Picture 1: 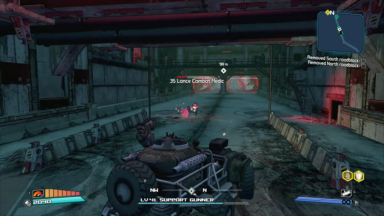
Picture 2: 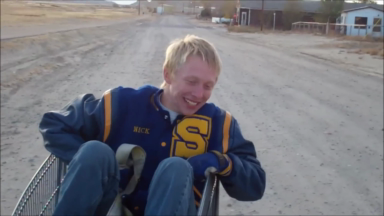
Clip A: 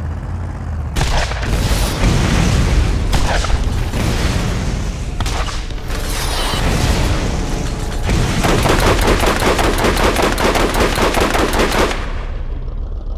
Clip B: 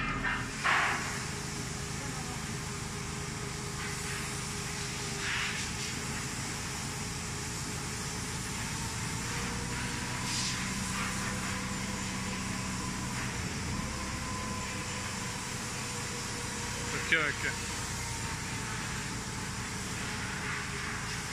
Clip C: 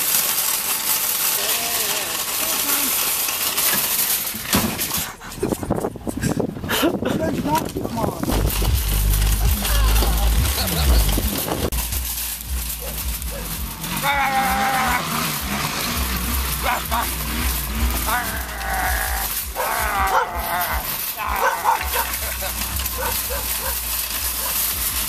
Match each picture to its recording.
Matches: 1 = A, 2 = C